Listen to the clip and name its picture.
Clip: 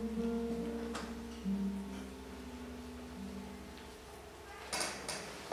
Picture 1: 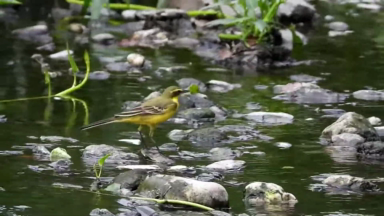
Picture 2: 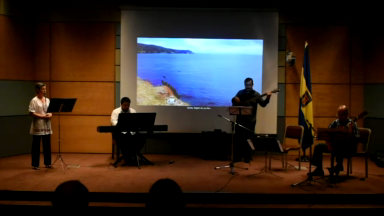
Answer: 2